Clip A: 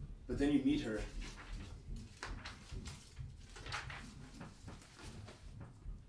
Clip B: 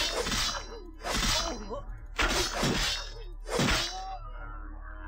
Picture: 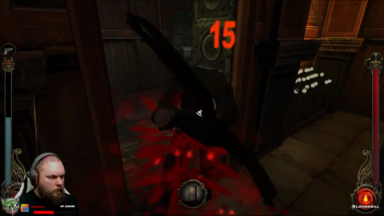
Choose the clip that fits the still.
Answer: B